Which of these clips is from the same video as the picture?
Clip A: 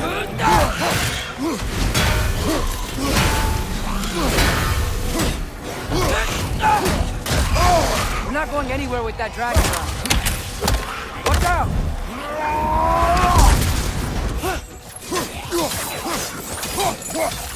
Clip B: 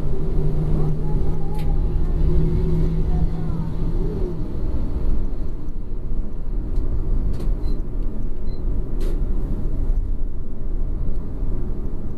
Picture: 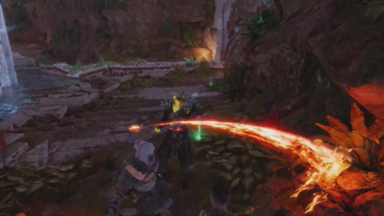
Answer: A